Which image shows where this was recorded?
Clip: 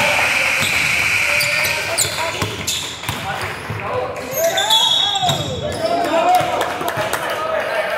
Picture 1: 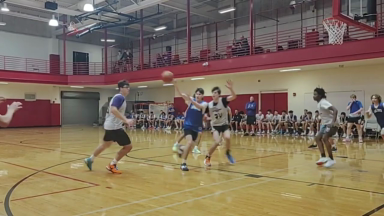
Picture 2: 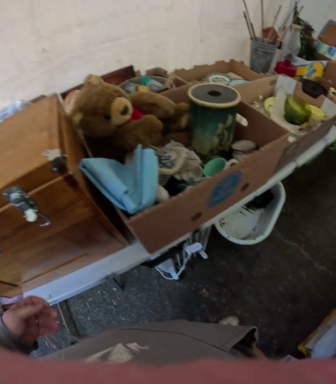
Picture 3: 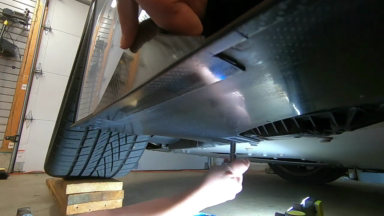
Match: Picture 1